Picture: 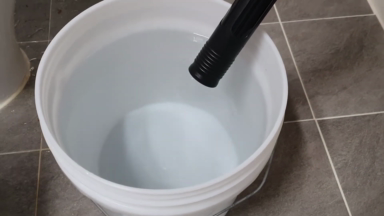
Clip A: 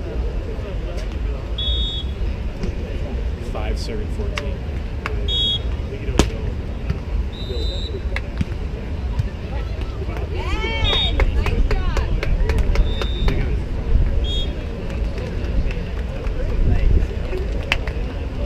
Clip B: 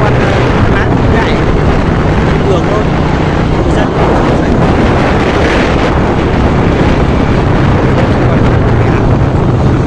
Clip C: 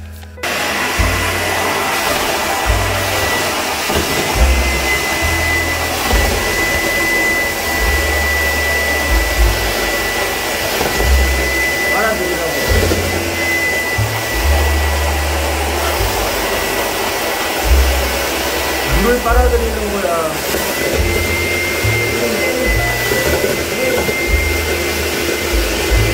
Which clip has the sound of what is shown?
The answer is C